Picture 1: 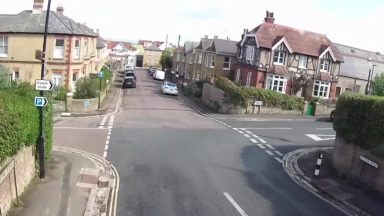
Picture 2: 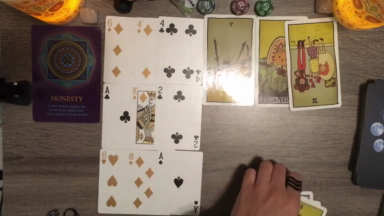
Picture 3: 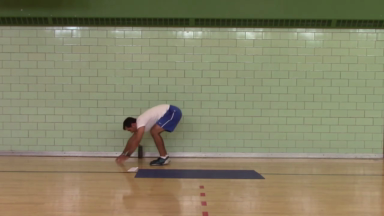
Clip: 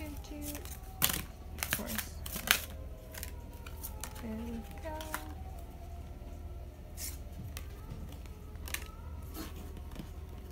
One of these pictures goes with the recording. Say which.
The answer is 2